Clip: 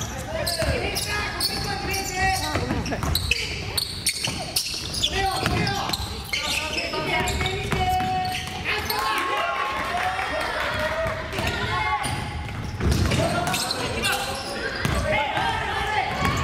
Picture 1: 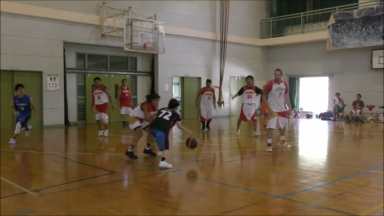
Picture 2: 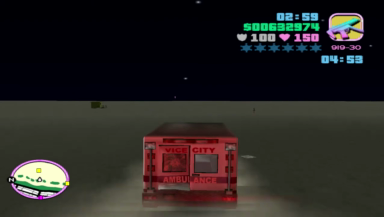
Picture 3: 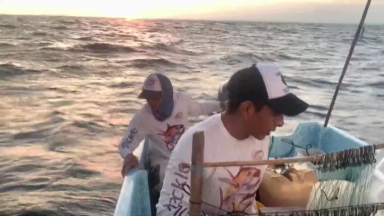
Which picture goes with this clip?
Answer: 1